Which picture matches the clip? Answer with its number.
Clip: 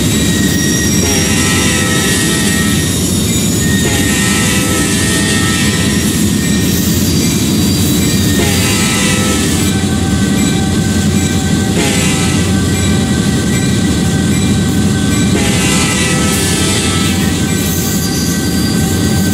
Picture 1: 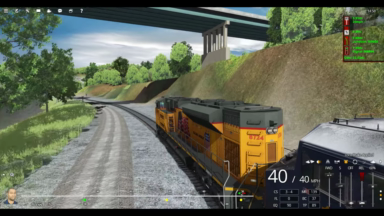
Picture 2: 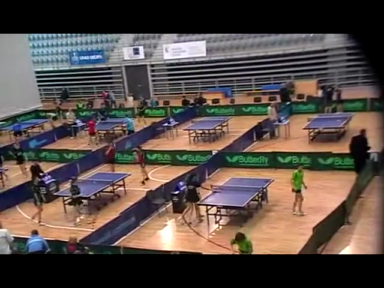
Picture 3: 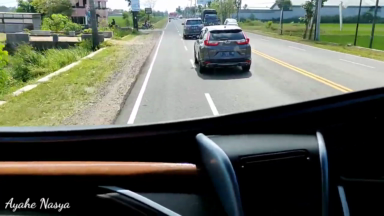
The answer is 1